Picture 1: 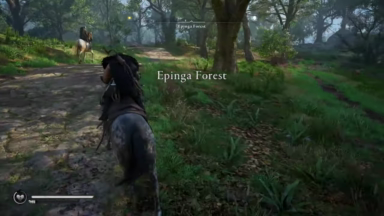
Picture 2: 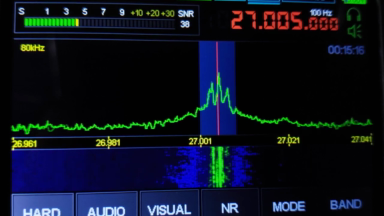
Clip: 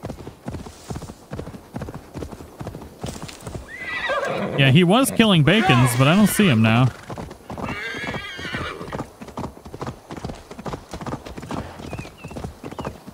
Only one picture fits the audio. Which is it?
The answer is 1